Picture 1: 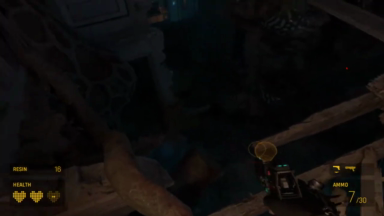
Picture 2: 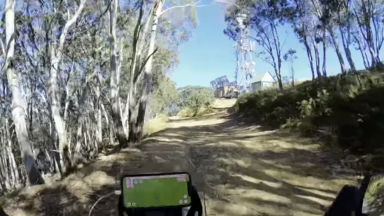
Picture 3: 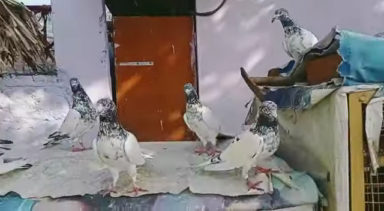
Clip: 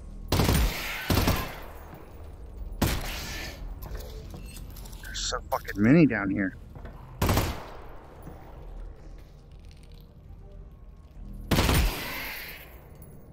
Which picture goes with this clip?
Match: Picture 1